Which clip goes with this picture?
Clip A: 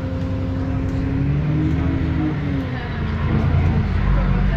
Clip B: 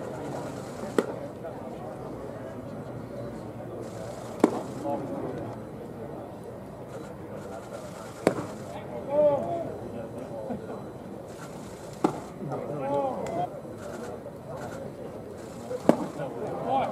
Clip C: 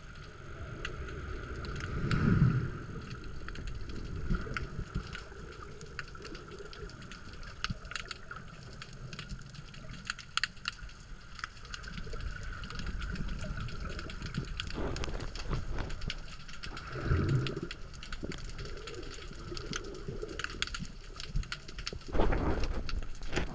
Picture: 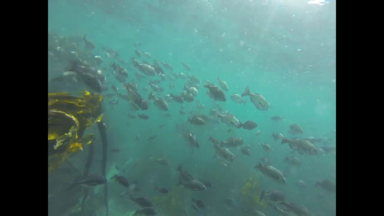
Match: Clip C